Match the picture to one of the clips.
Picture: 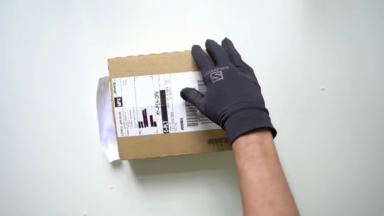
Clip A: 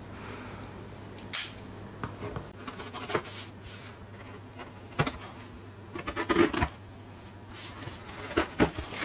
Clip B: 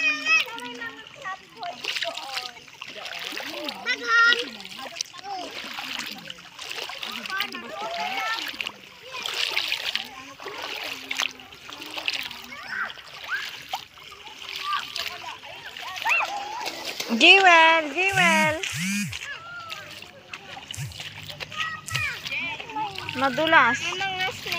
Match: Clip A